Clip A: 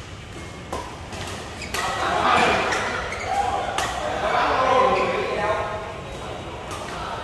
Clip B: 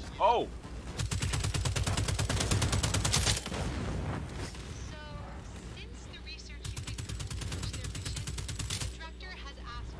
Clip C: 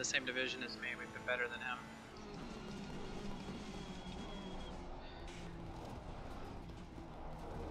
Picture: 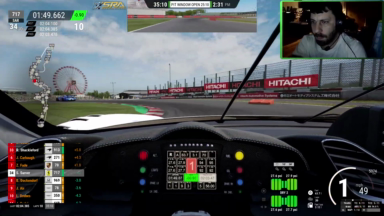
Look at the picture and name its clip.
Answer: C